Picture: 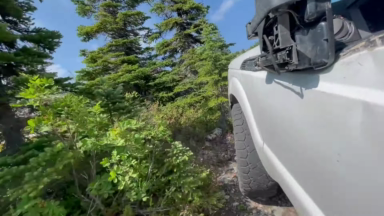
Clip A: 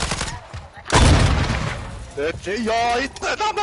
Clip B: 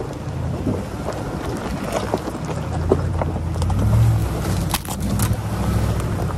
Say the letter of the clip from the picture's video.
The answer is B